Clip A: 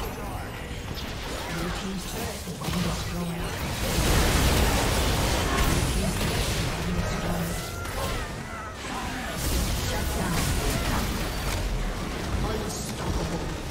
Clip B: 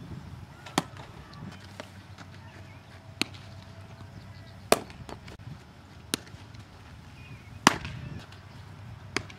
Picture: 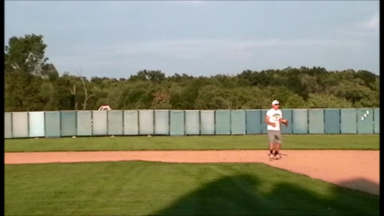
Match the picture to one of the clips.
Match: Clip B